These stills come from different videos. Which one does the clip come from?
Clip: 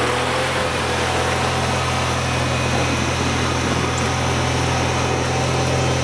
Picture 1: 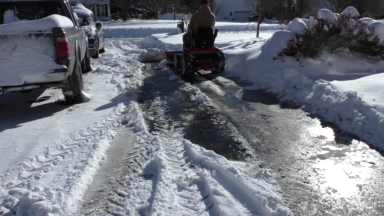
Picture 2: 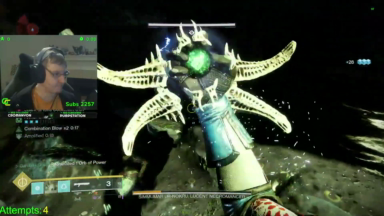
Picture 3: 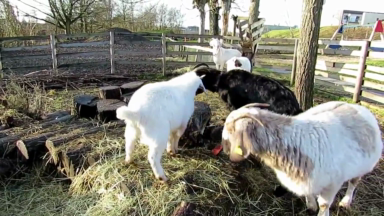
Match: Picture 1